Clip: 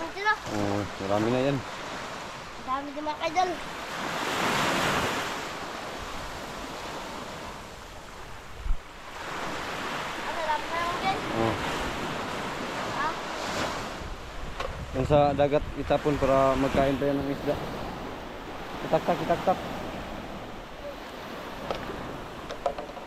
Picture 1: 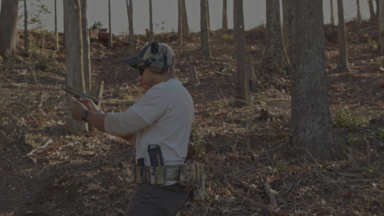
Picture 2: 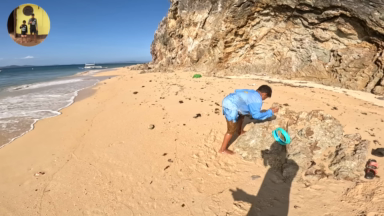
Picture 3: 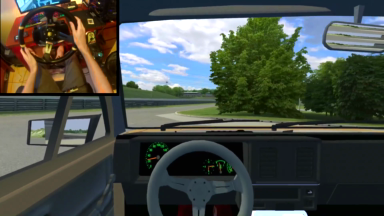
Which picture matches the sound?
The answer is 2